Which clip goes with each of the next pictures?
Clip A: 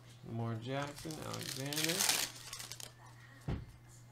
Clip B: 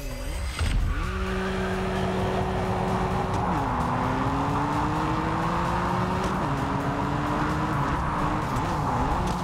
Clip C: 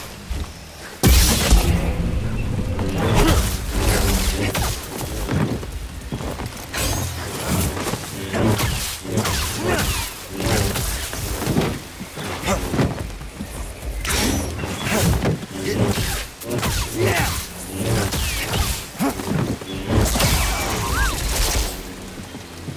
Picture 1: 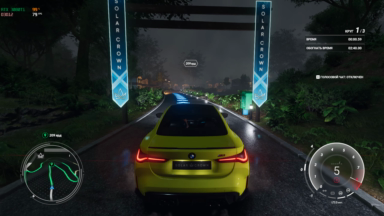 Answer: B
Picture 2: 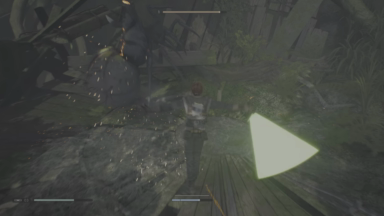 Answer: C